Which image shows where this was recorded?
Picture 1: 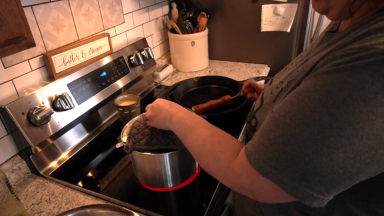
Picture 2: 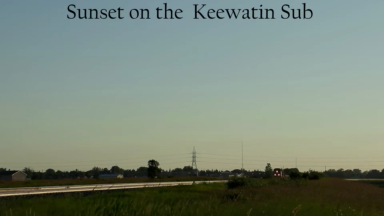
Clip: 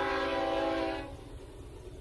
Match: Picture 2